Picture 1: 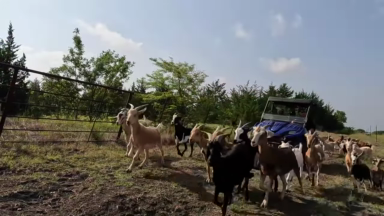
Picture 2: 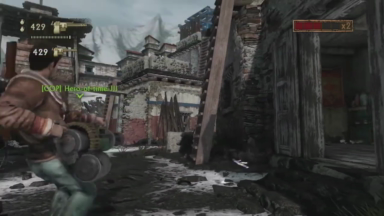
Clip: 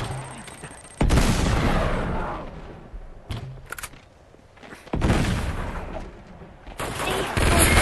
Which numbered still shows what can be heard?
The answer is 2